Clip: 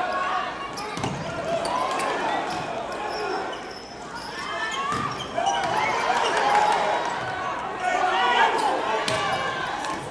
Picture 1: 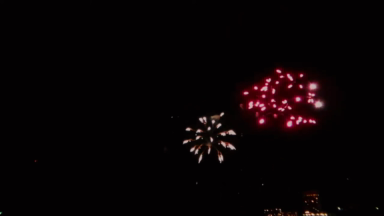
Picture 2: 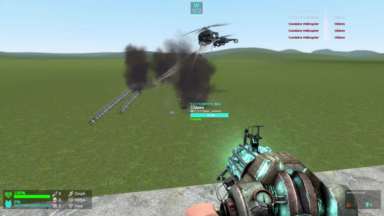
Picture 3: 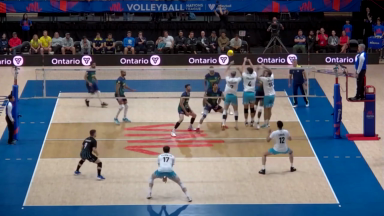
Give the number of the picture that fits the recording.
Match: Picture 3